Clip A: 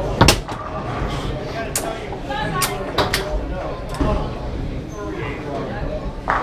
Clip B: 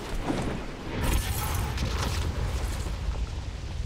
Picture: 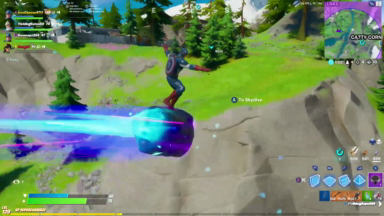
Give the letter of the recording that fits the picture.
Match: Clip B